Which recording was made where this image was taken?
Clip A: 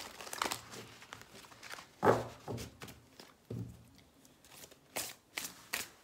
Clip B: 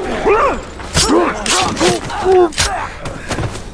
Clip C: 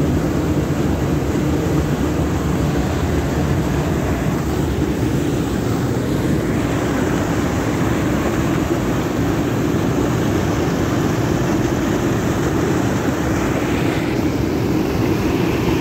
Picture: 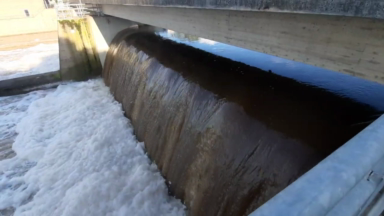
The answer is C